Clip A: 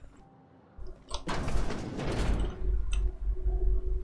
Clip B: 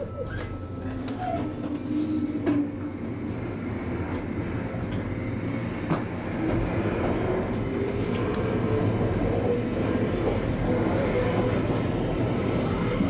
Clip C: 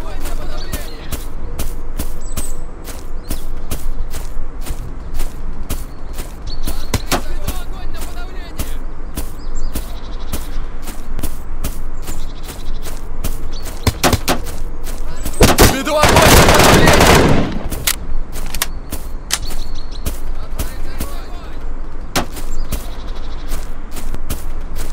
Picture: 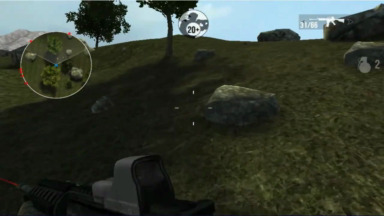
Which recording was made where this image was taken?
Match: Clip C